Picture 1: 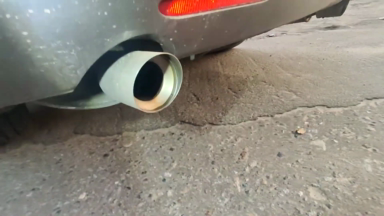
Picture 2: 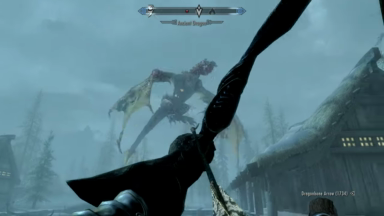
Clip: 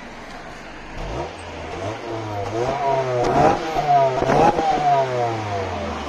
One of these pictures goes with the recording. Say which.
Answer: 1